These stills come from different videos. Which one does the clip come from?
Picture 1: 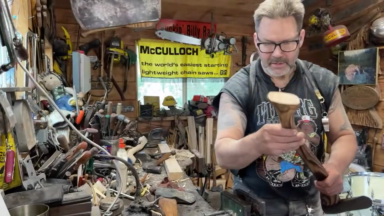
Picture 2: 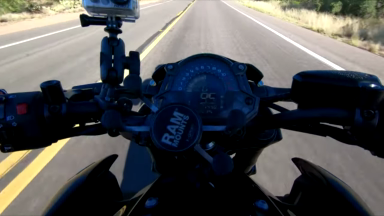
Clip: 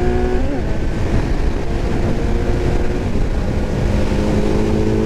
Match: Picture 2